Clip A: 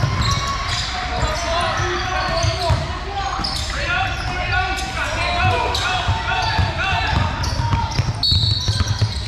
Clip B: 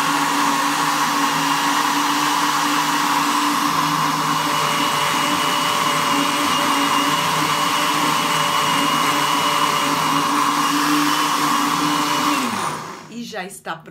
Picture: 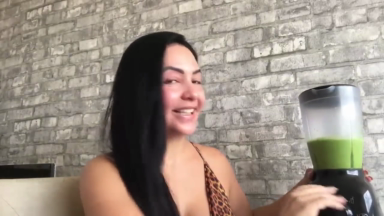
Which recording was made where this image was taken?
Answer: B